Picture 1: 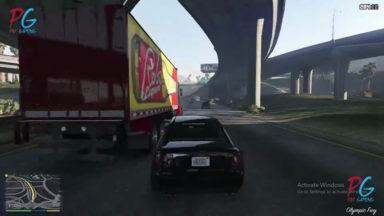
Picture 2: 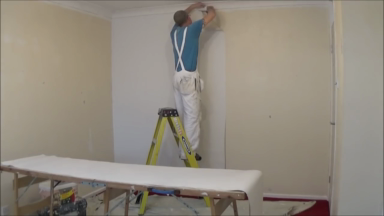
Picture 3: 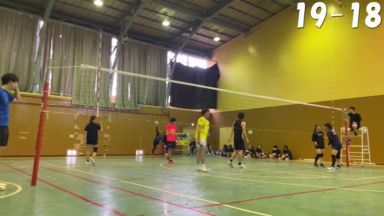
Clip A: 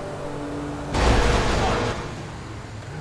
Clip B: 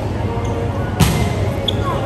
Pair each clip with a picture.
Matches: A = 1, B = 3